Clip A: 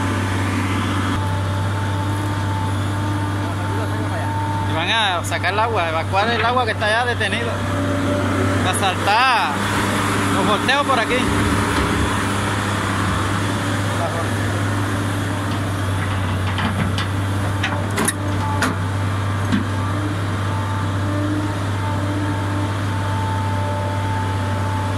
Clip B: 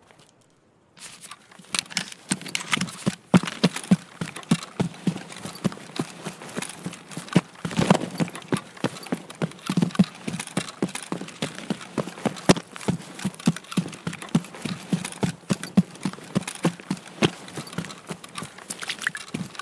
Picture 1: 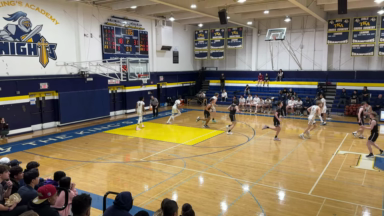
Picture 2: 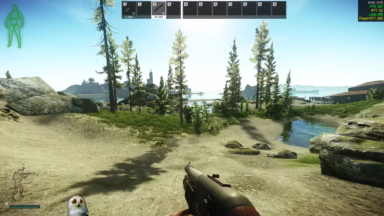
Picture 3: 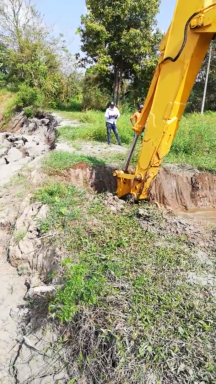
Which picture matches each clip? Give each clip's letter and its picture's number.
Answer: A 3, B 2